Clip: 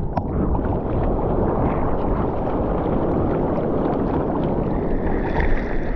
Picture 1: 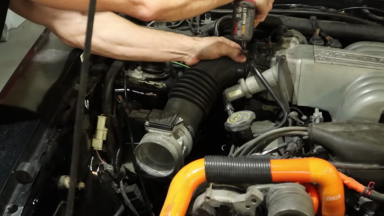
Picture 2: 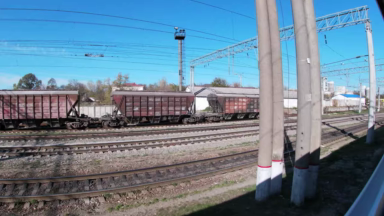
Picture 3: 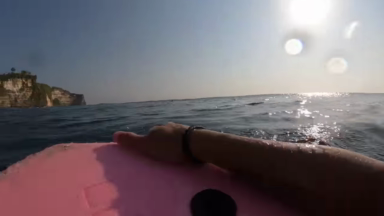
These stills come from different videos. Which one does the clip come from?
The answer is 3